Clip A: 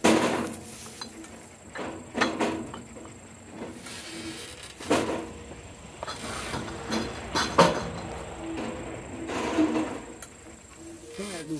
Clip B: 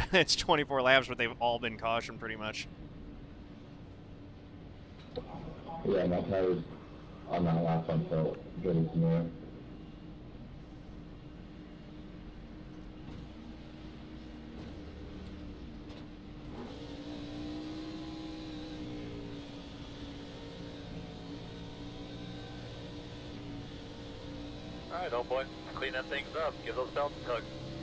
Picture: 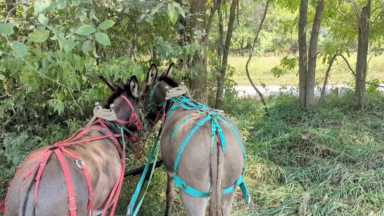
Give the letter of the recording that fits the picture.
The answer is A